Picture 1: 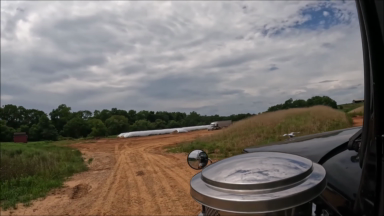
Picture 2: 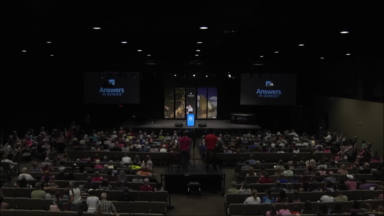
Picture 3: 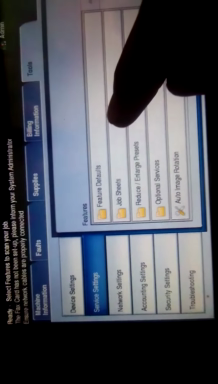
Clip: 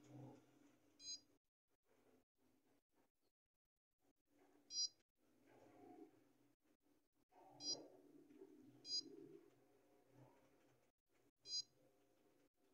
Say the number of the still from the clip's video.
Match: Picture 3